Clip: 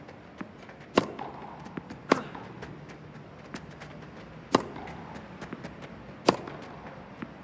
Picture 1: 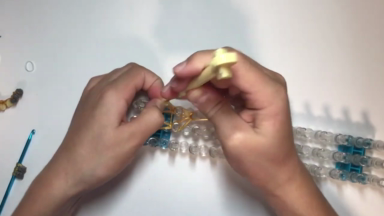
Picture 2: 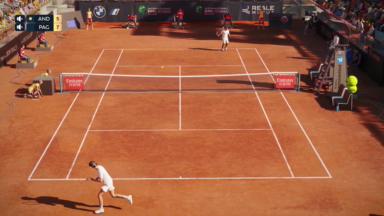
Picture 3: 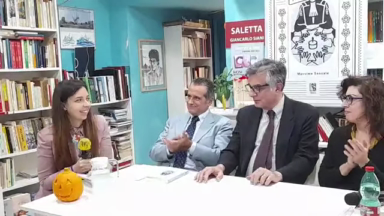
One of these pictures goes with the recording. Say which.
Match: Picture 2